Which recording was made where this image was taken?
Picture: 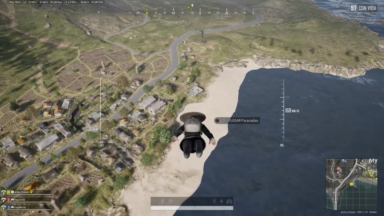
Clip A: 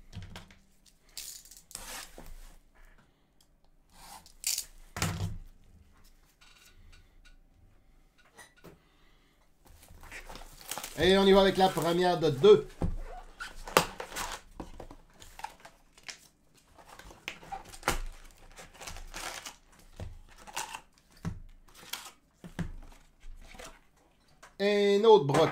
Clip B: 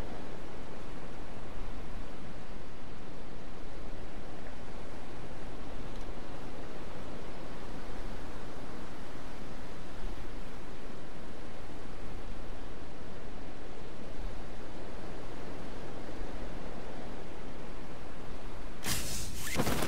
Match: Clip B